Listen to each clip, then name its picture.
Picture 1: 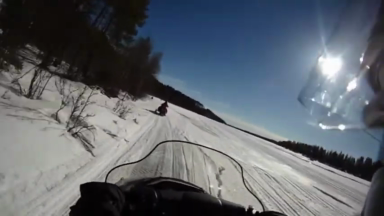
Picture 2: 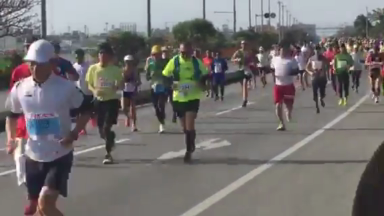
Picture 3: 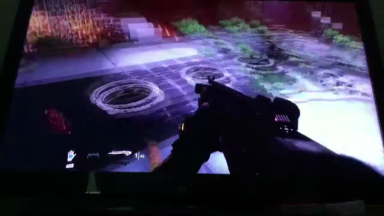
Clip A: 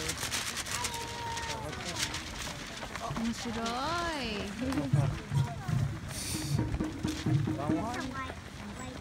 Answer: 2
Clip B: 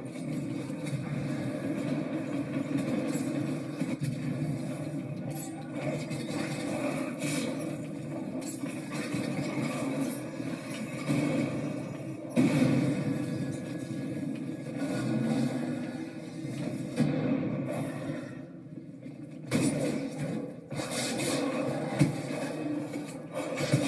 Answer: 3